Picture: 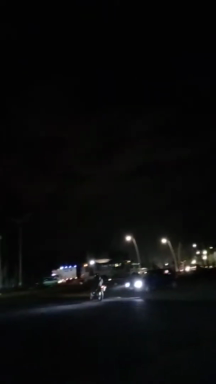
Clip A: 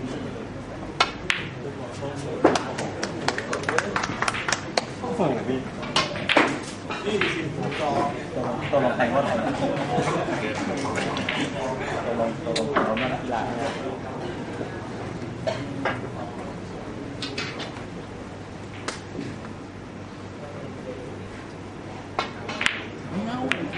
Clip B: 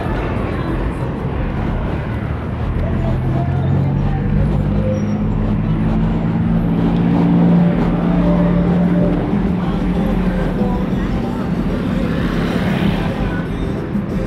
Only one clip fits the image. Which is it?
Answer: B